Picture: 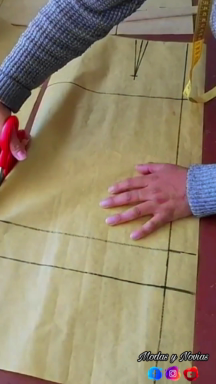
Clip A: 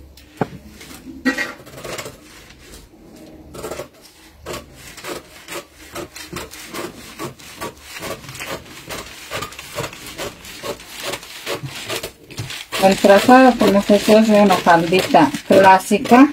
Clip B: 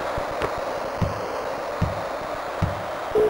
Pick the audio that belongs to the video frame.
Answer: A